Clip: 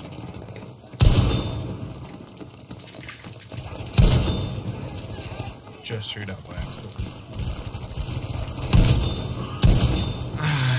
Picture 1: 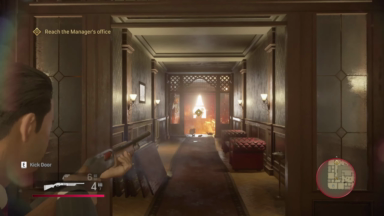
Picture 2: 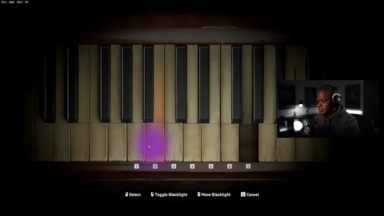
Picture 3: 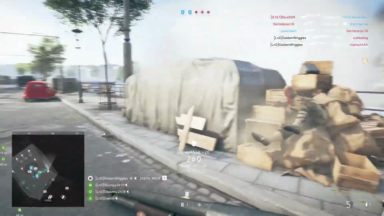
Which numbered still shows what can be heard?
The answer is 3